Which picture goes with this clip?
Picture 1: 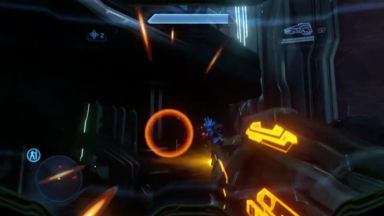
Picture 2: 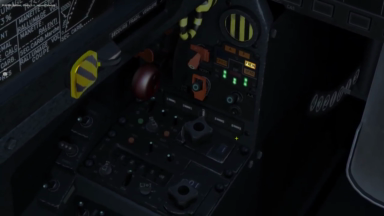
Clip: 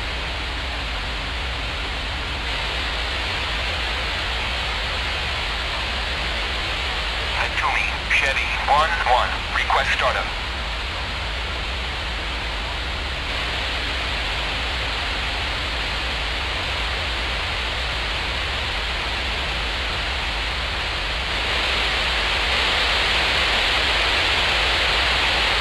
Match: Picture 2